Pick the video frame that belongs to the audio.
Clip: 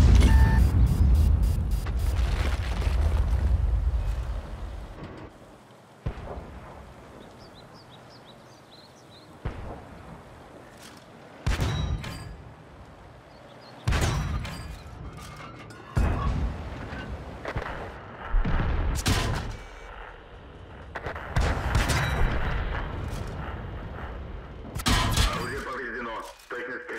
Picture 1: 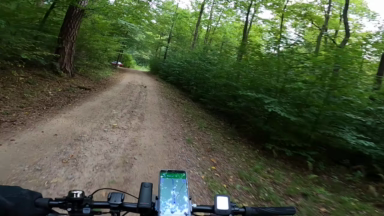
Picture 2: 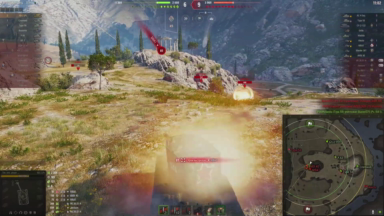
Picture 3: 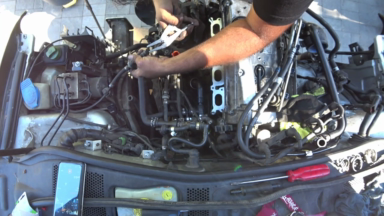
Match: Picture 2